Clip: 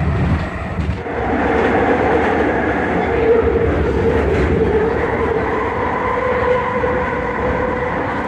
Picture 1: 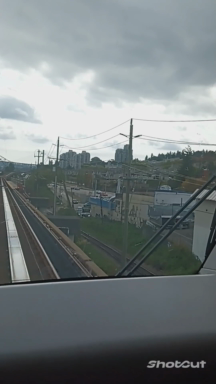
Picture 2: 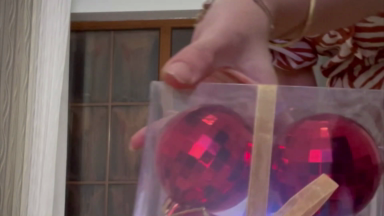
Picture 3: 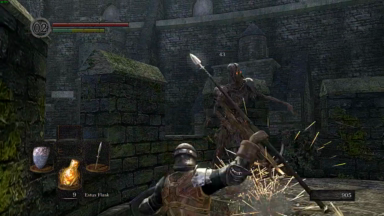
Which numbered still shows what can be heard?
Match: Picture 1